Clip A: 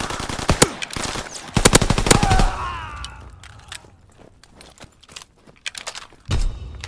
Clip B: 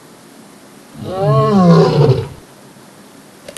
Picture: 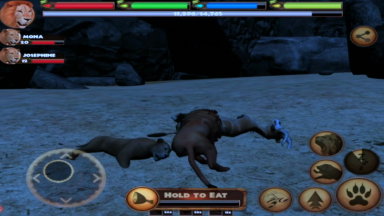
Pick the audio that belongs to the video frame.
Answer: B